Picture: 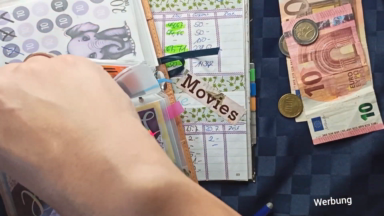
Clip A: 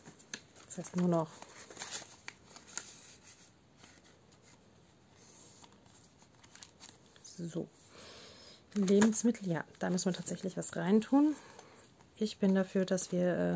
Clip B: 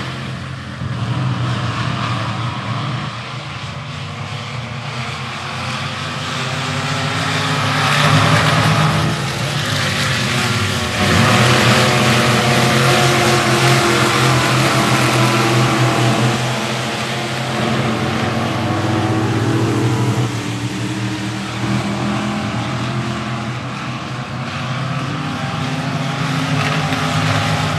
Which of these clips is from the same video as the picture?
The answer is A